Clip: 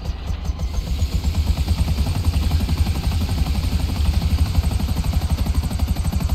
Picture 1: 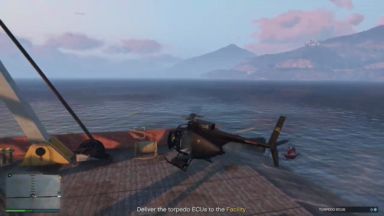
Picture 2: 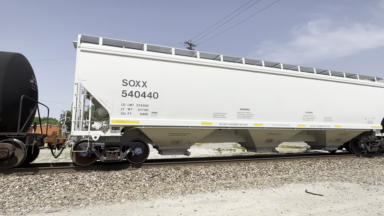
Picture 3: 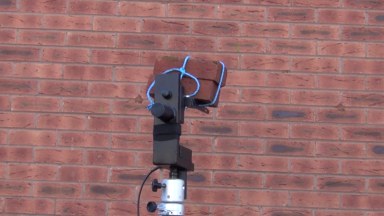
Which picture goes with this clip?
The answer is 1